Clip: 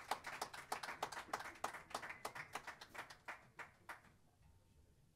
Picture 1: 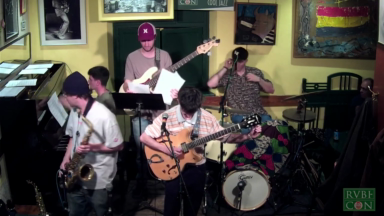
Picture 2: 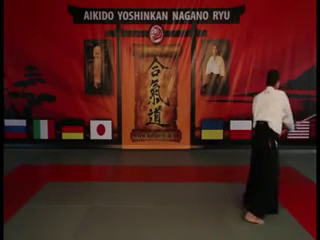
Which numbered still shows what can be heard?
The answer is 1